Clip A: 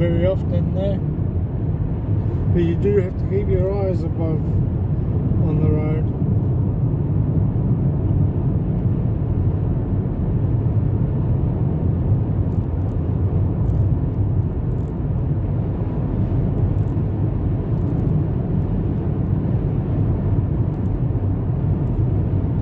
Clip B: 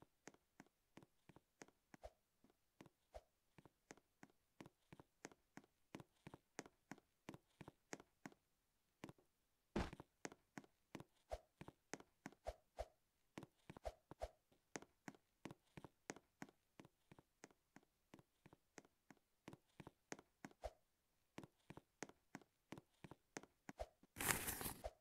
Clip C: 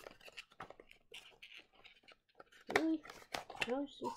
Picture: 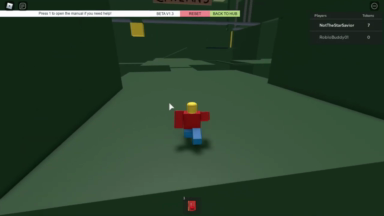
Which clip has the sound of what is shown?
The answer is B